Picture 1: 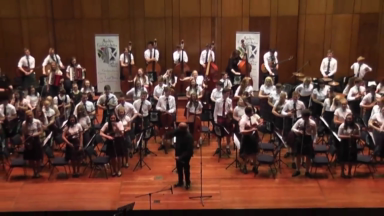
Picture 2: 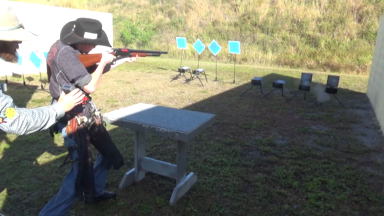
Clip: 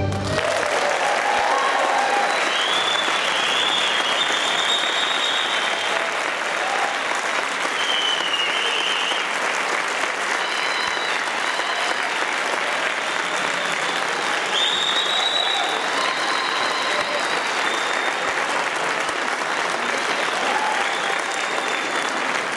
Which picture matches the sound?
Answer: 1